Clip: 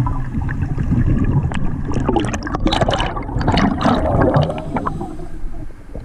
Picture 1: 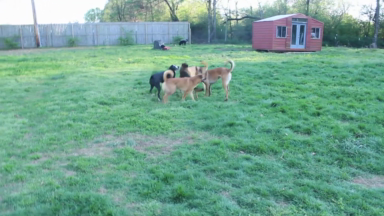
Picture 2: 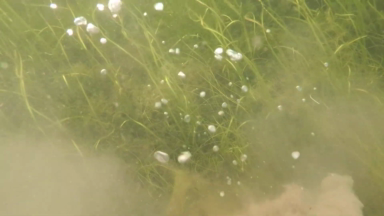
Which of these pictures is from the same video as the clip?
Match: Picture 2